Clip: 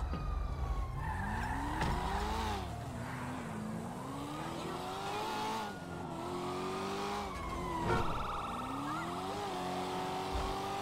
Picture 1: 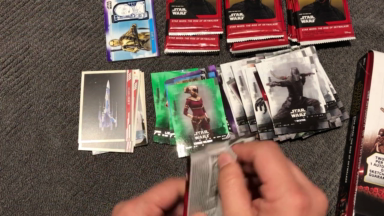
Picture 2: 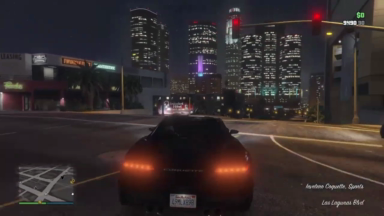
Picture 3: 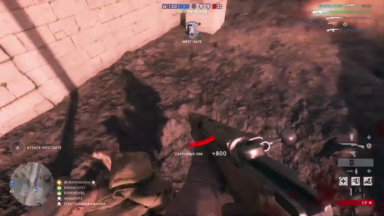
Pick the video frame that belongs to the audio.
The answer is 2